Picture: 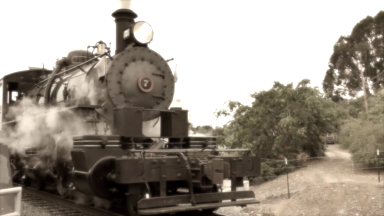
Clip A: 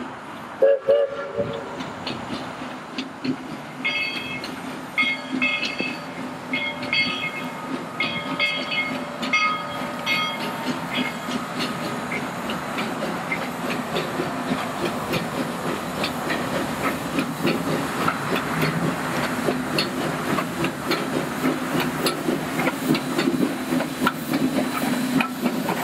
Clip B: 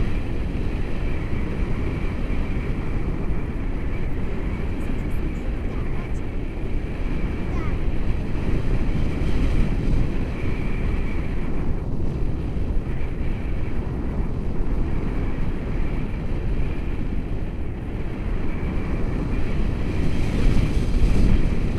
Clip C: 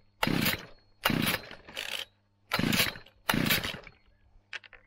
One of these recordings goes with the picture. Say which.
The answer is A